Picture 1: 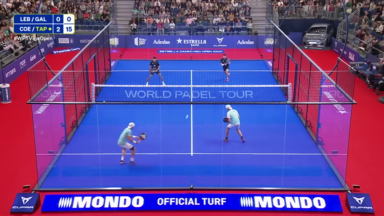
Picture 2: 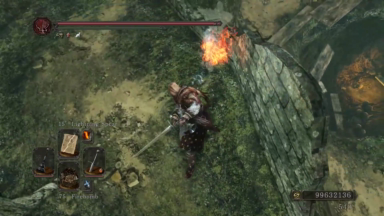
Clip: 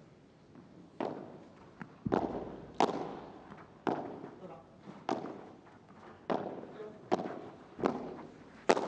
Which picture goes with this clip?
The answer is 1